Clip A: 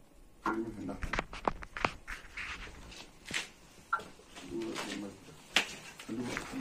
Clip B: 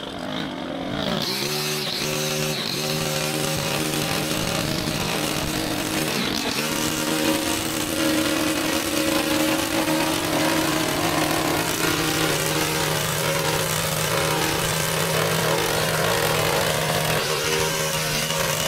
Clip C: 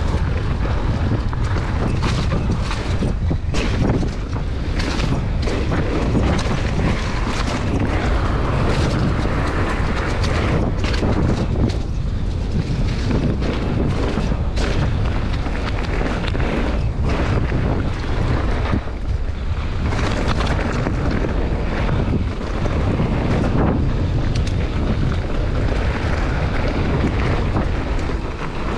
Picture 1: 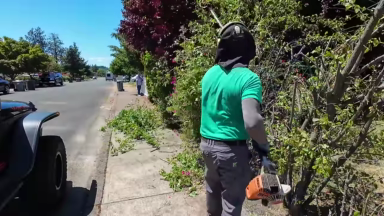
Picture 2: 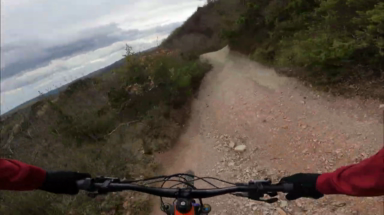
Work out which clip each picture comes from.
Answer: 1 B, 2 C